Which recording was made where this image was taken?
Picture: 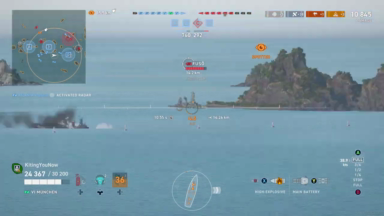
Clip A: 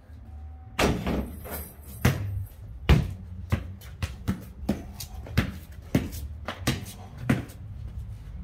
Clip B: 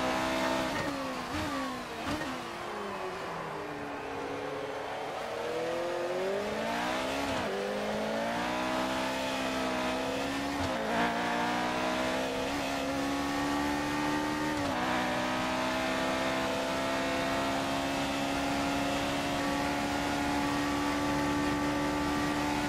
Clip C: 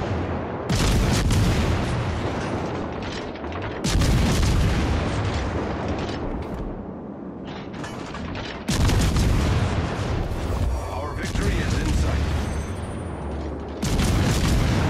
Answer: C